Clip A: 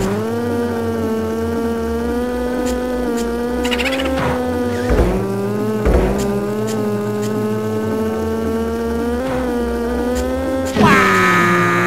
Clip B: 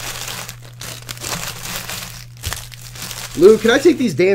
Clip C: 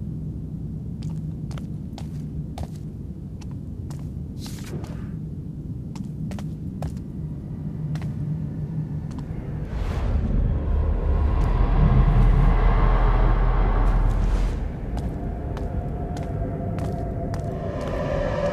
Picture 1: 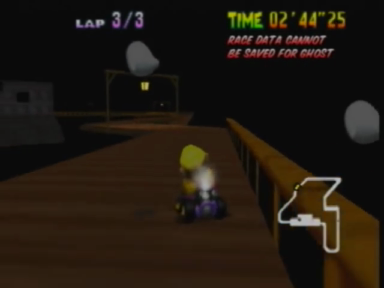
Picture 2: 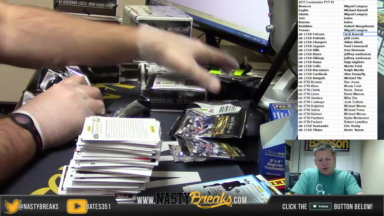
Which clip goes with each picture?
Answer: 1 A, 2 B